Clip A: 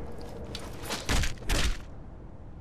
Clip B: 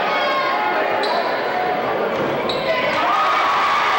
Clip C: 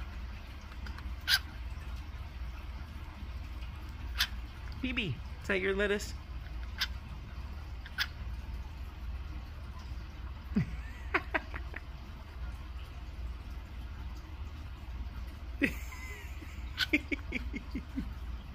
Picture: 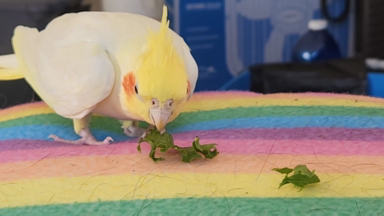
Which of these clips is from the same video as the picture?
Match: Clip C